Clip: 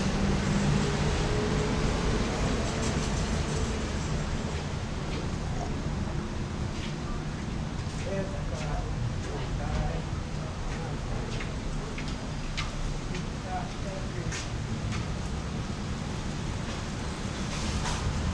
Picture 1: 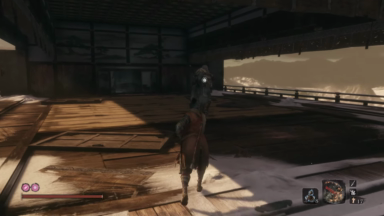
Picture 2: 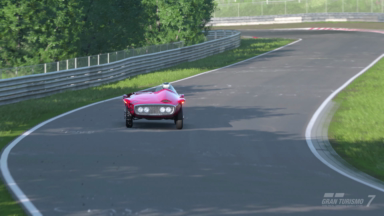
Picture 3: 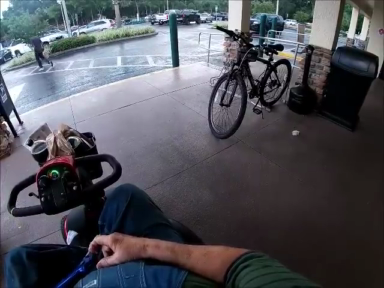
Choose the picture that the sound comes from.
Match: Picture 3